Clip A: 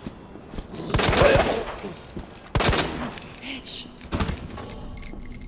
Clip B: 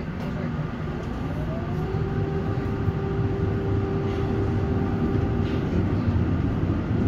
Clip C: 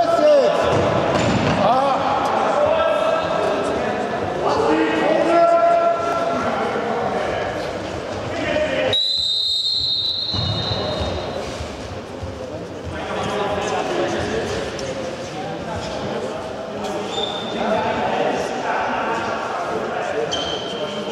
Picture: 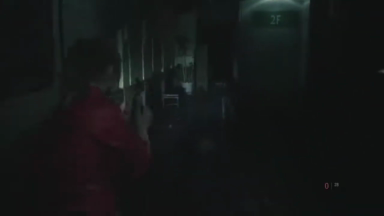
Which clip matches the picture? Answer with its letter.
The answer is A